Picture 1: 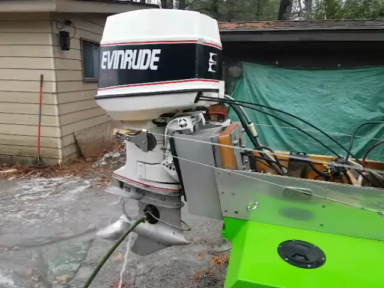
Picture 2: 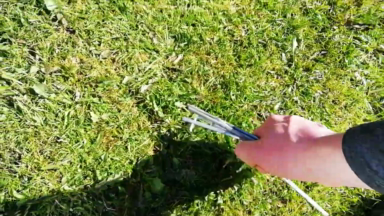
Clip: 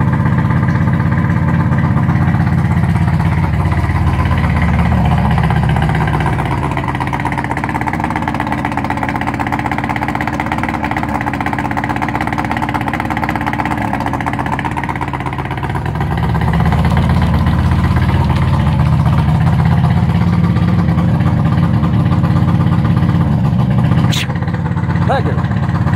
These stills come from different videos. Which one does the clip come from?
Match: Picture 1